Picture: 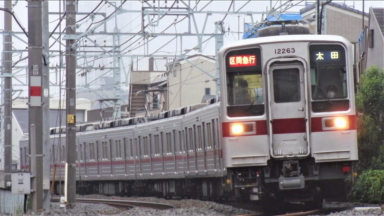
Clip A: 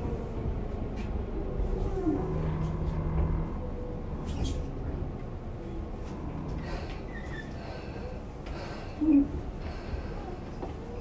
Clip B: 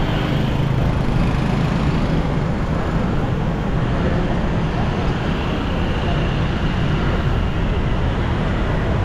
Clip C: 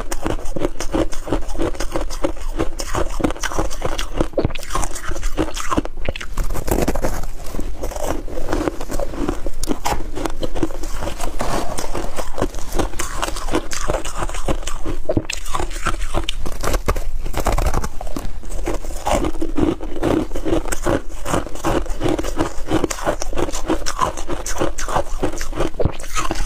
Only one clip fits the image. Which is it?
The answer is A